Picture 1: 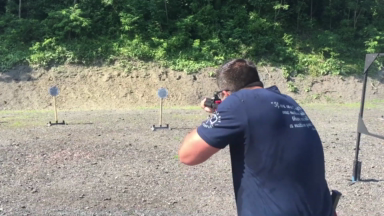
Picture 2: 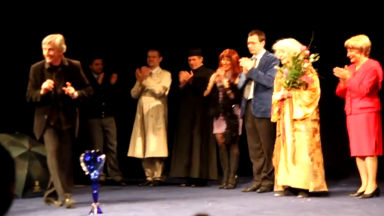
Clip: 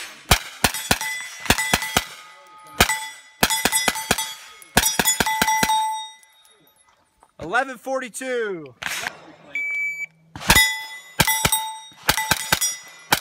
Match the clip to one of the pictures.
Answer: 1